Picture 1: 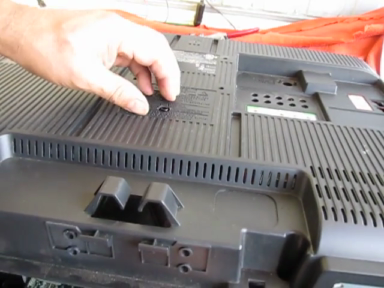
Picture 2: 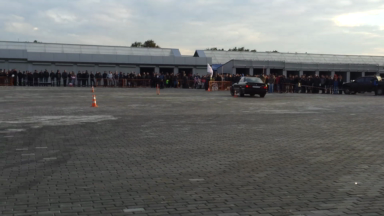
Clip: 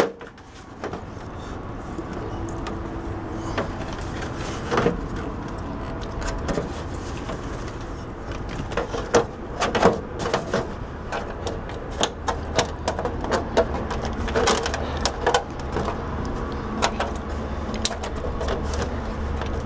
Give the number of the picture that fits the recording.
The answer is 1